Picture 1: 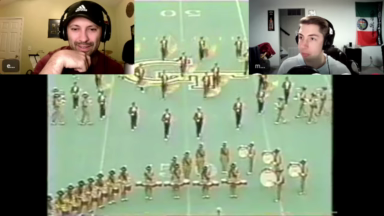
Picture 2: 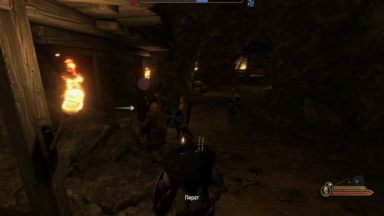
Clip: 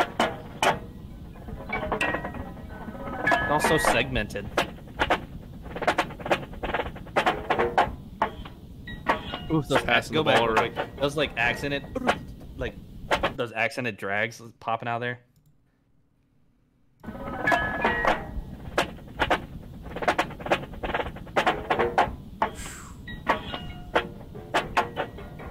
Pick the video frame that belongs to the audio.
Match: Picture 1